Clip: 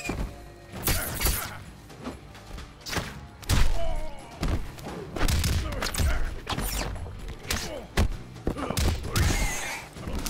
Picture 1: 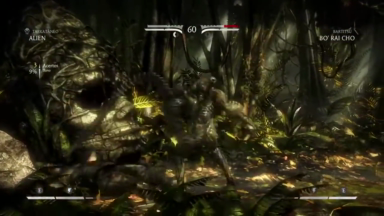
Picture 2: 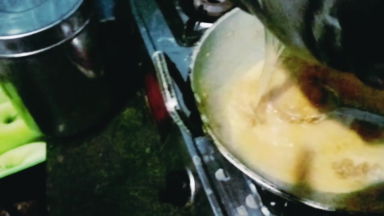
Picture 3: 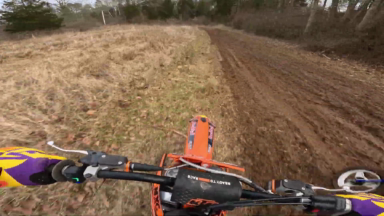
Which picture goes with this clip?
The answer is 1